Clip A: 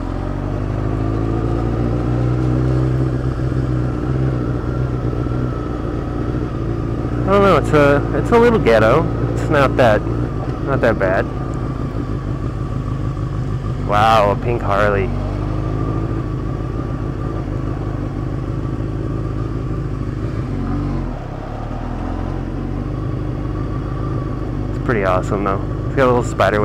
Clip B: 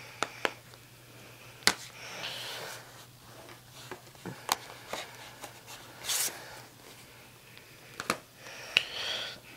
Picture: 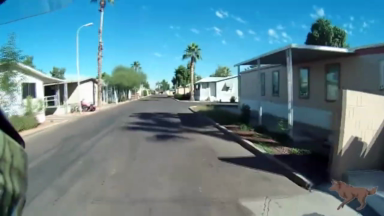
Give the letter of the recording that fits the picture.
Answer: A